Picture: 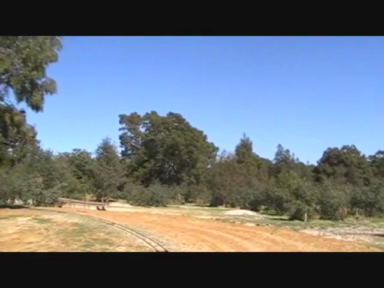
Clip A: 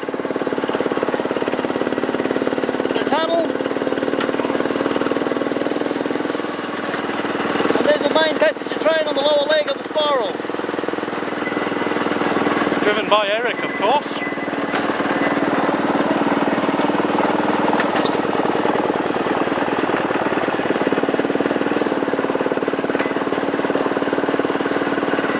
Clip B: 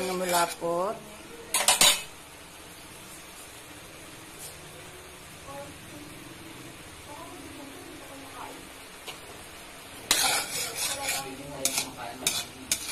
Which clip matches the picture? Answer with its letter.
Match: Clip A